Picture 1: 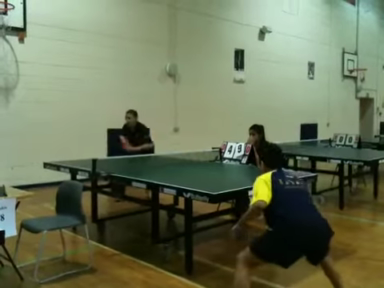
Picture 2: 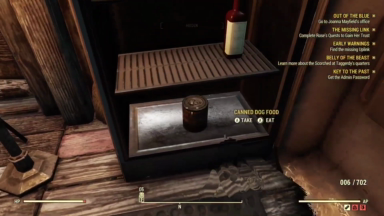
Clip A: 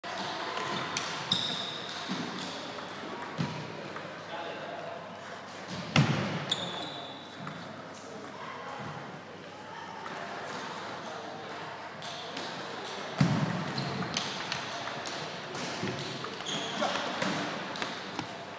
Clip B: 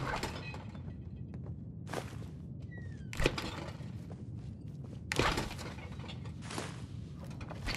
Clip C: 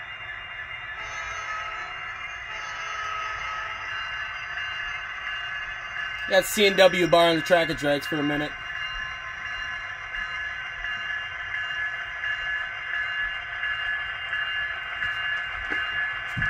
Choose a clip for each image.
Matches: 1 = A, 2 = B